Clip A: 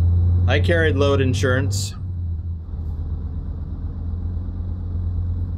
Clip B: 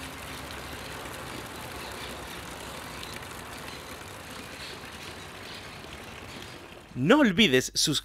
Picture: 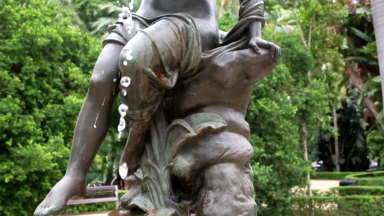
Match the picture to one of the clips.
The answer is B